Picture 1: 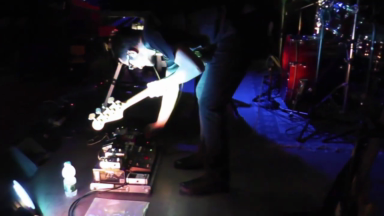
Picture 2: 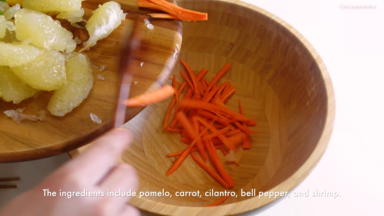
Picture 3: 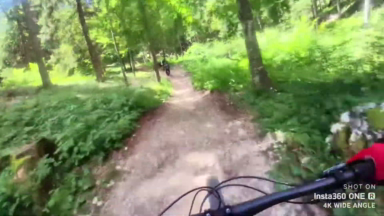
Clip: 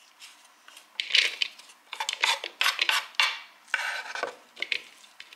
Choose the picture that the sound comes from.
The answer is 2